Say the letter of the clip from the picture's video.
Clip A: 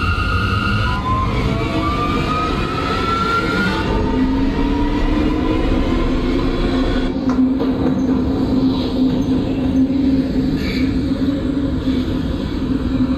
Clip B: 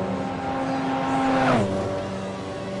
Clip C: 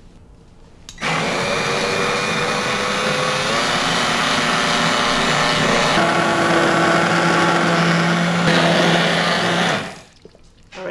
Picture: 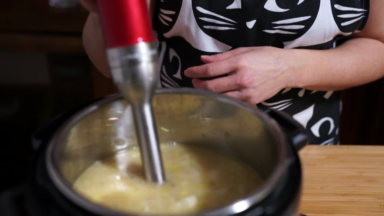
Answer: C